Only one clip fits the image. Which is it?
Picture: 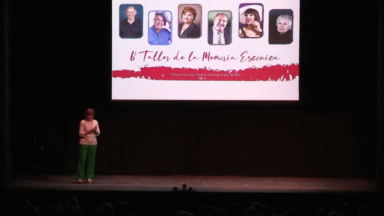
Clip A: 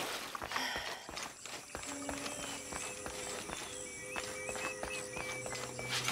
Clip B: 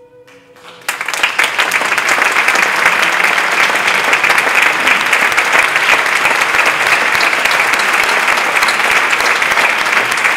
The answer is B